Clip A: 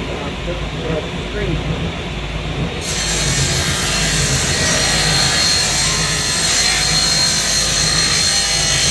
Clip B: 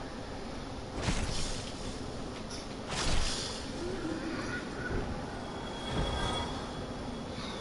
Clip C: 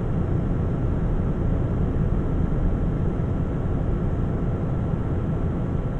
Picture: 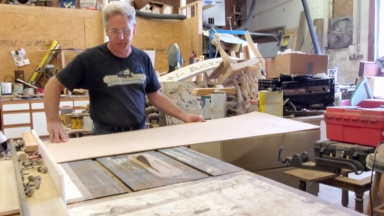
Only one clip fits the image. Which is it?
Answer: A